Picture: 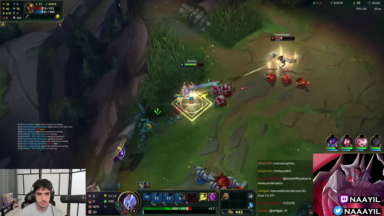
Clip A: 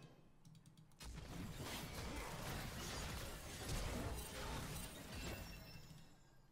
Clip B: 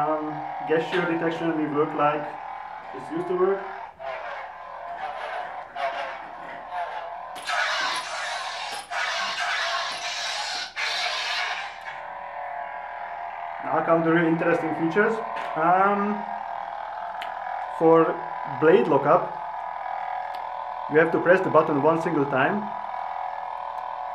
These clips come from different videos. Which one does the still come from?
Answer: A